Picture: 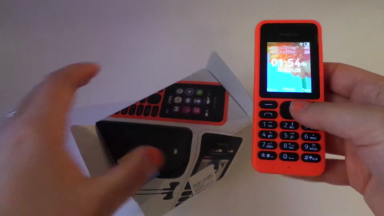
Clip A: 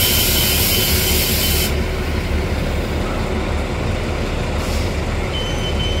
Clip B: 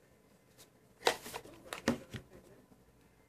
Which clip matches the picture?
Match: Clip B